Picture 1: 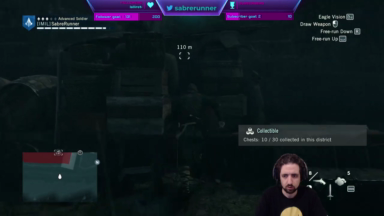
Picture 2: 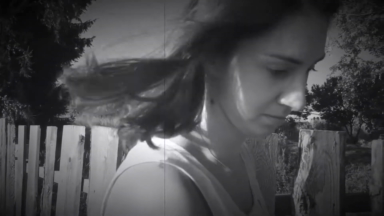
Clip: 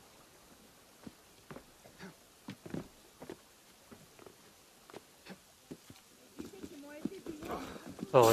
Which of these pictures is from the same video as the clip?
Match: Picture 1